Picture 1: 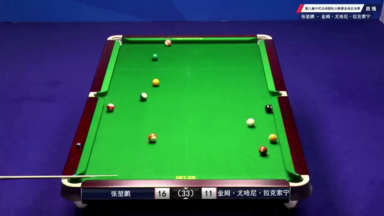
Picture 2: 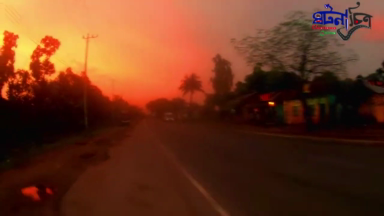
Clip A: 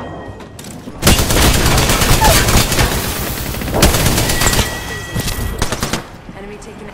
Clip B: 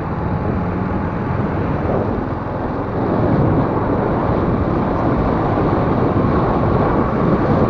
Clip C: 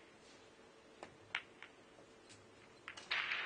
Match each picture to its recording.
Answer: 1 C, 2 B